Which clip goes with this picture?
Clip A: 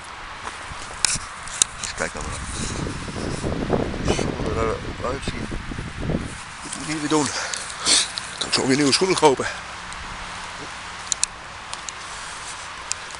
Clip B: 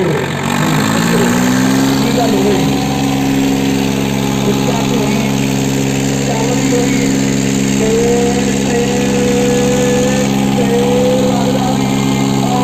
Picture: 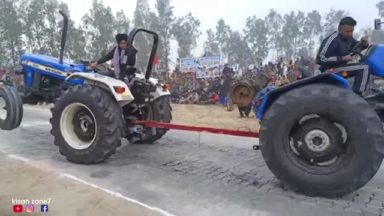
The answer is B